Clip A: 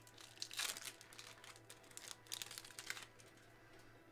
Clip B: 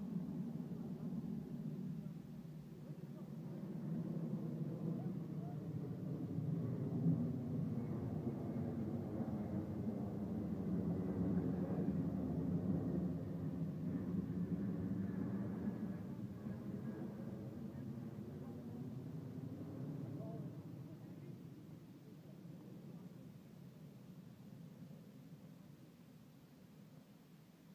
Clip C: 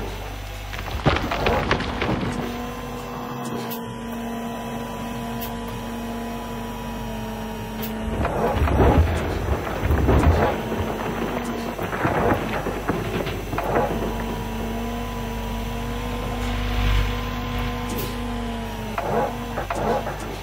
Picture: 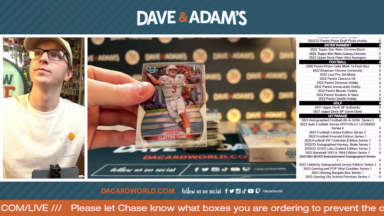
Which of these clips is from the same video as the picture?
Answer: A